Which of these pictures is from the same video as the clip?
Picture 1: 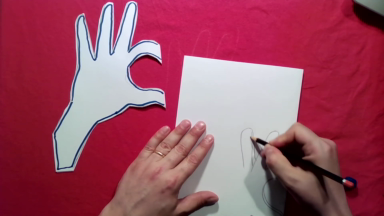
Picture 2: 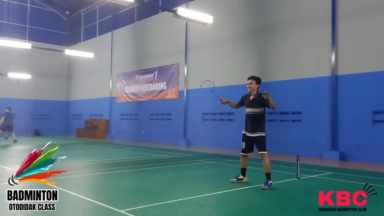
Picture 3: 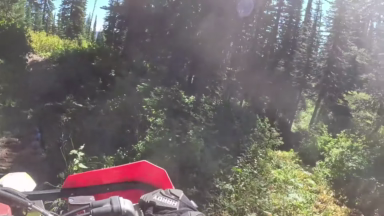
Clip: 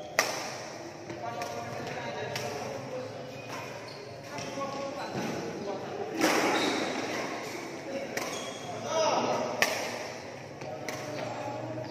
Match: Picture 2